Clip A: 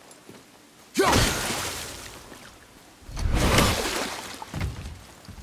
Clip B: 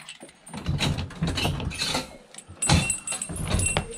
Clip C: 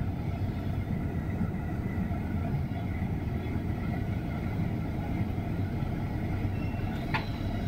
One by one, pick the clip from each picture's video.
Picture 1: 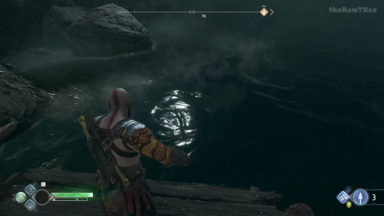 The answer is A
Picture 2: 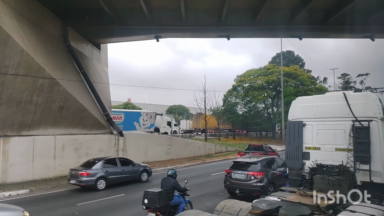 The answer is C